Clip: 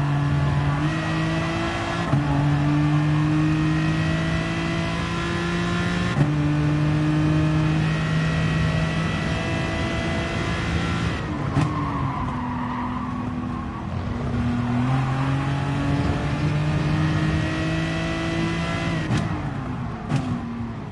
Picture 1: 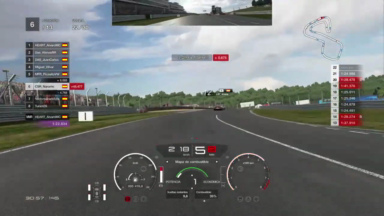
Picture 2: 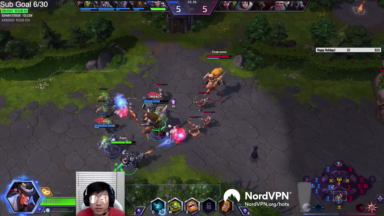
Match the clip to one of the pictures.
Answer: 1